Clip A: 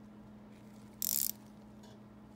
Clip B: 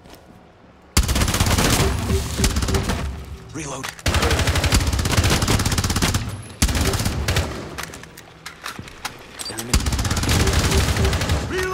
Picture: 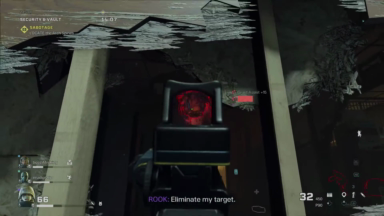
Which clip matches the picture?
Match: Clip B